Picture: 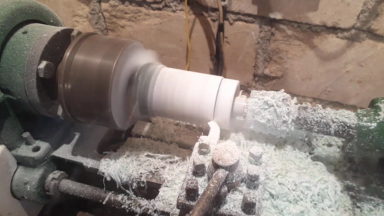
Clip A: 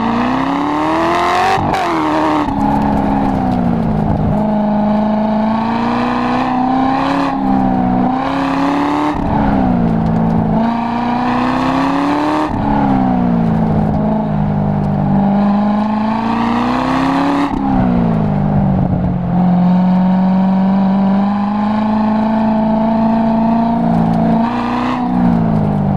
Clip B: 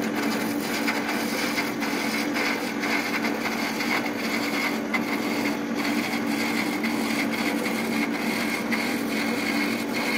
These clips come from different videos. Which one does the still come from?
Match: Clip B